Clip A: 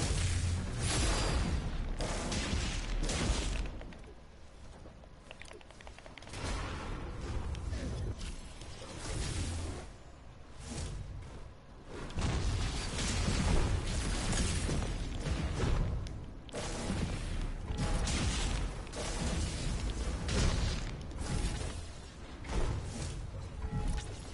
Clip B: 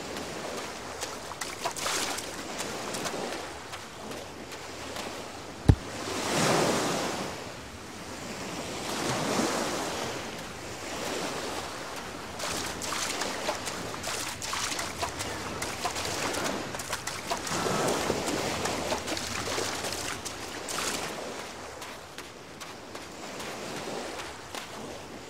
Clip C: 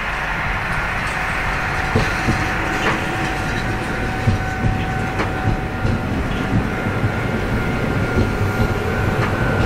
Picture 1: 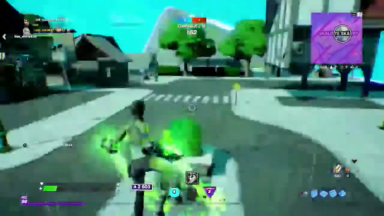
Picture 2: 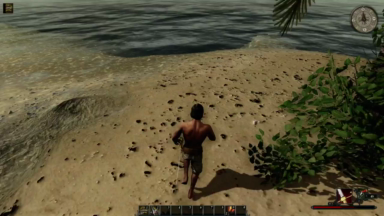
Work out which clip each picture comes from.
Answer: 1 A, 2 B